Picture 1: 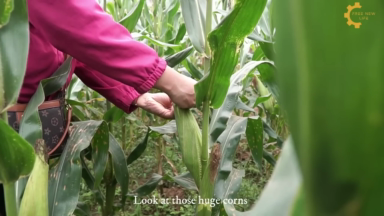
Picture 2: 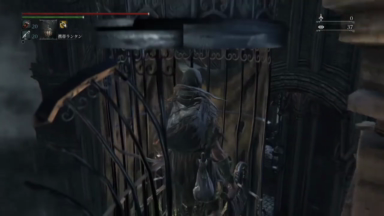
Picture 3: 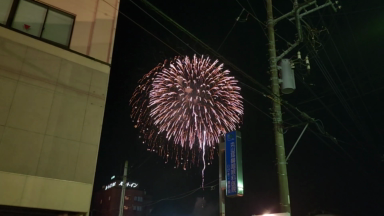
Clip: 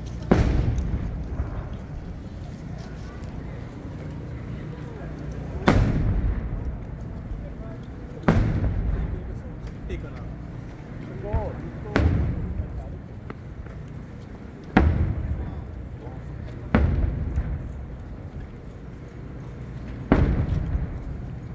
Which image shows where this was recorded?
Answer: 3